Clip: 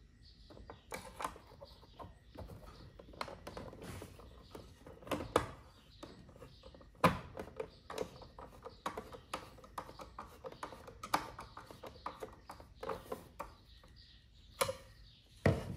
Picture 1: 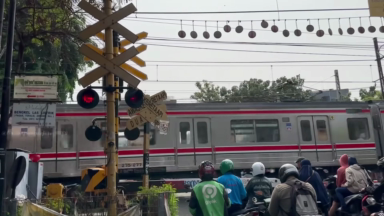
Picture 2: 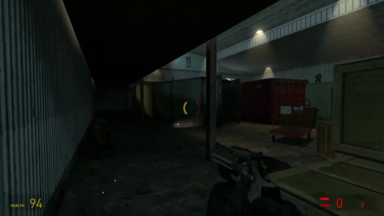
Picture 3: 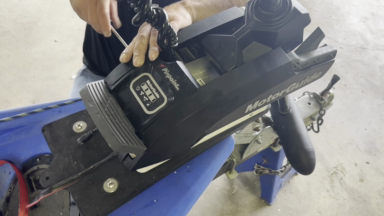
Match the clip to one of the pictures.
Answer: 3